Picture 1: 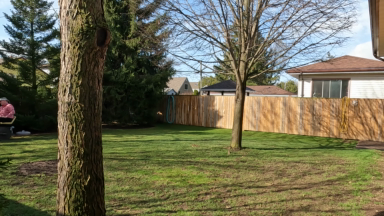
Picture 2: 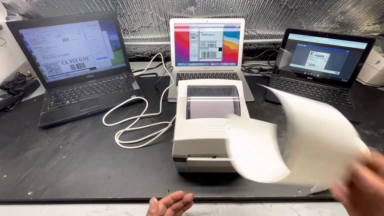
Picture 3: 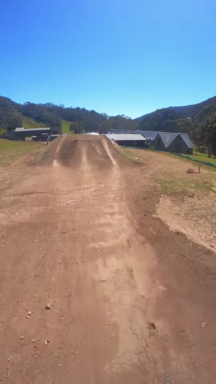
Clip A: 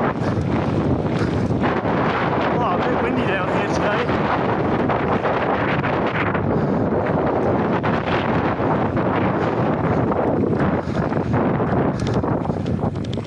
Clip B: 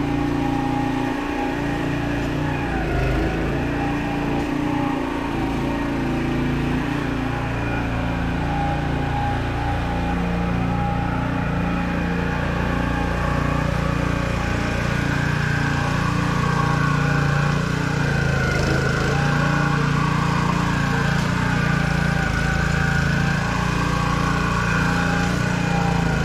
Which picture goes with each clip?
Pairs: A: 3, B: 1